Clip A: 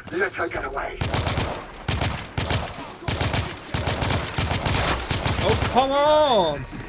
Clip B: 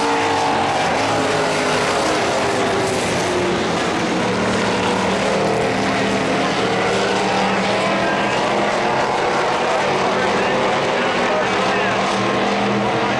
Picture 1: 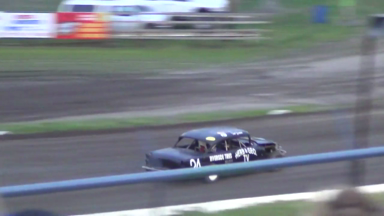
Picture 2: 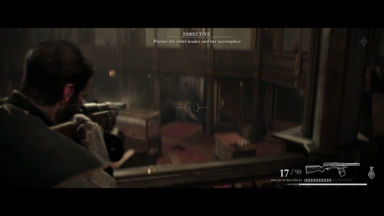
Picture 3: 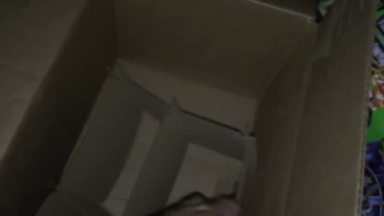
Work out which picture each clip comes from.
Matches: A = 2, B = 1